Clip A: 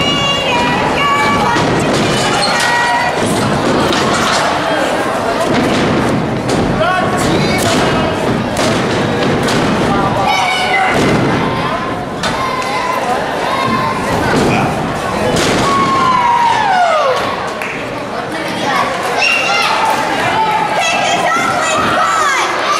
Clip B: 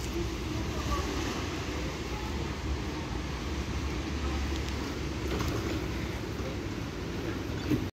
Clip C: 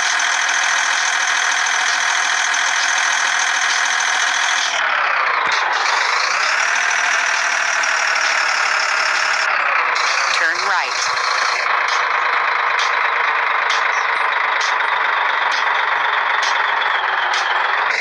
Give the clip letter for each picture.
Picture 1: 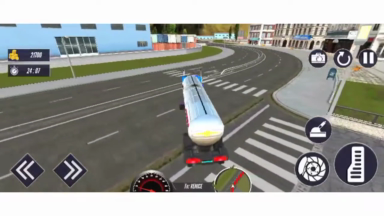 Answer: C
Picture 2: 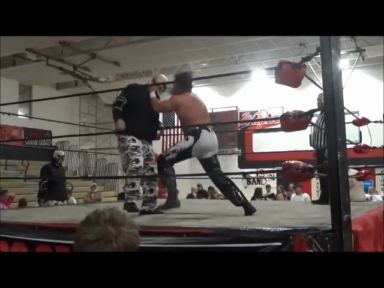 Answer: A